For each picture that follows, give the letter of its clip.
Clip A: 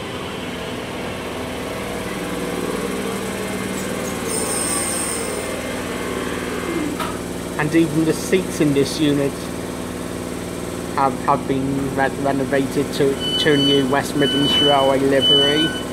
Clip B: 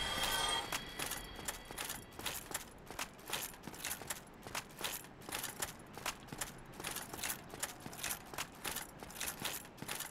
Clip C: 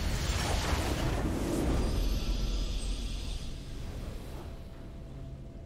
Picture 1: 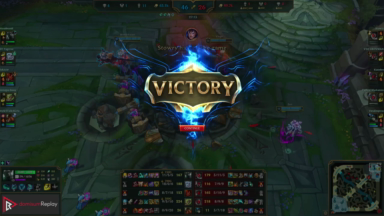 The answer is C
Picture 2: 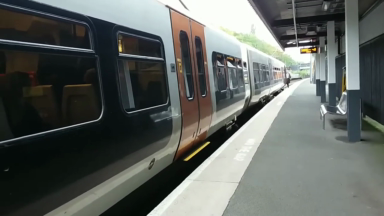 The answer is A